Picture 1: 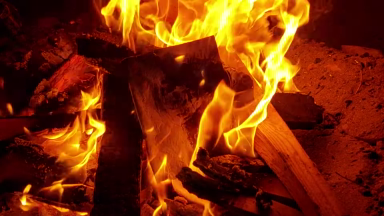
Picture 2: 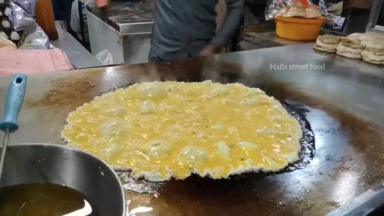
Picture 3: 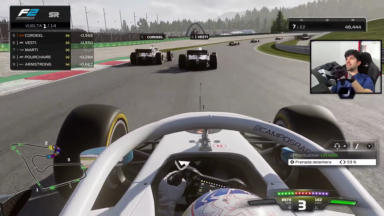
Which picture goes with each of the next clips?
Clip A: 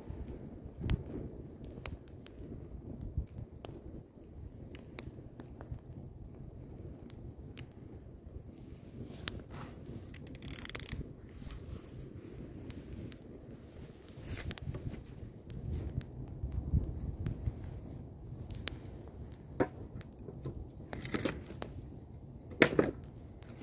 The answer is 1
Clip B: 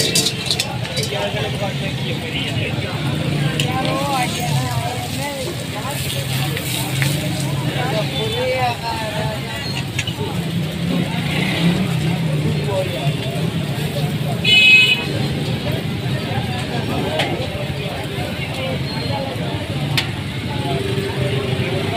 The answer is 2